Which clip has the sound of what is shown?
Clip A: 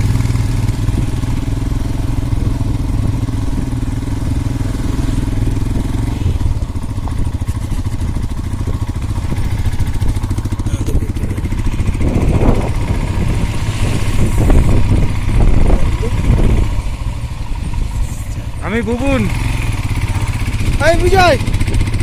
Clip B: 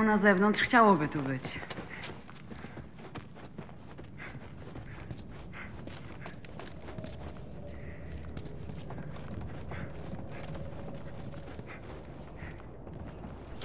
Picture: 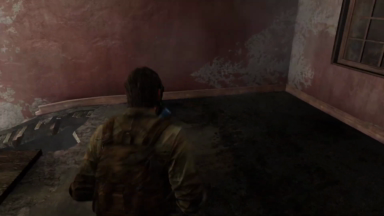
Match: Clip B